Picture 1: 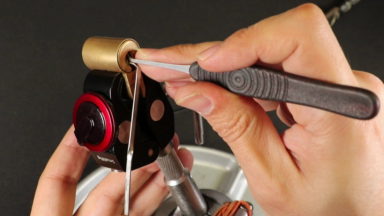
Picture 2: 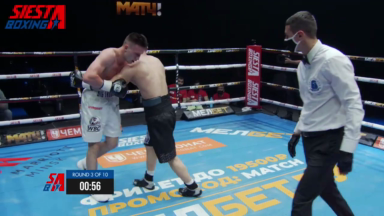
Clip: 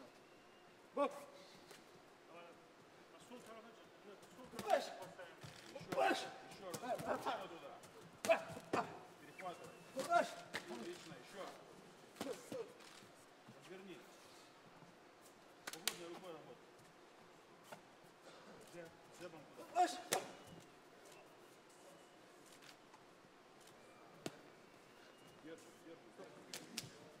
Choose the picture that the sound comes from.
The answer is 2